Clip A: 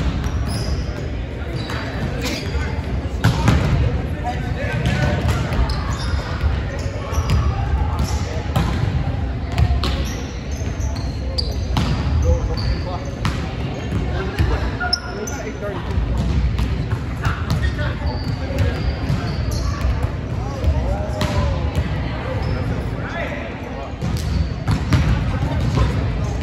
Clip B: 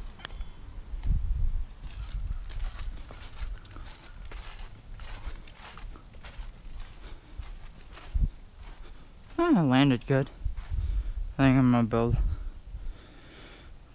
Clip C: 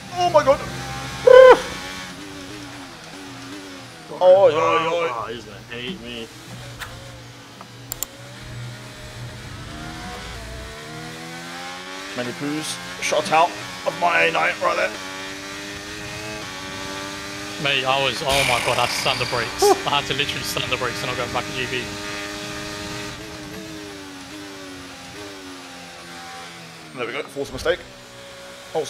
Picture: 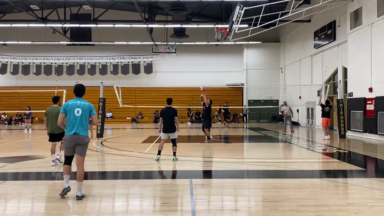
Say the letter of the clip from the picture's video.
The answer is A